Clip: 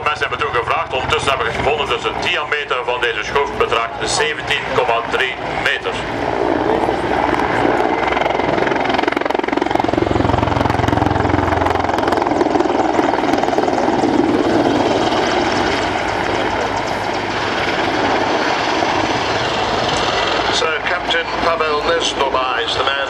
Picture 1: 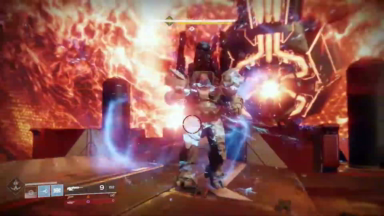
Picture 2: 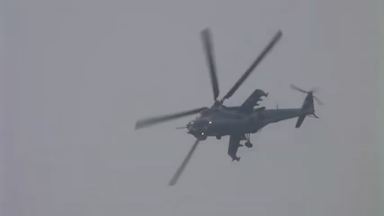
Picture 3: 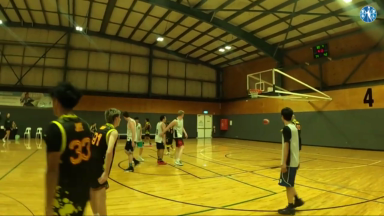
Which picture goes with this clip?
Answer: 2